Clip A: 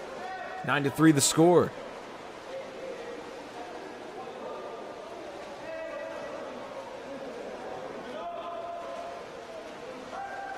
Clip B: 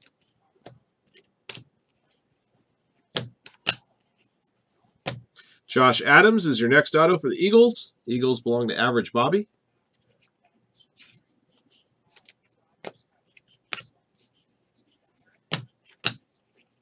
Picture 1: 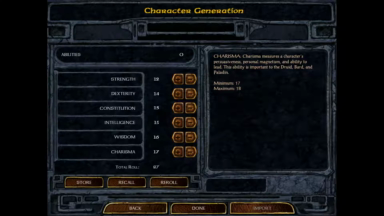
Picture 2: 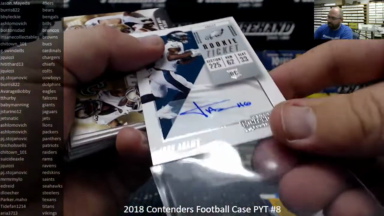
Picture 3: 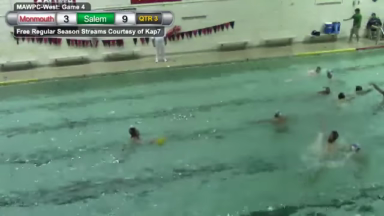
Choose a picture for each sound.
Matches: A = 3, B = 2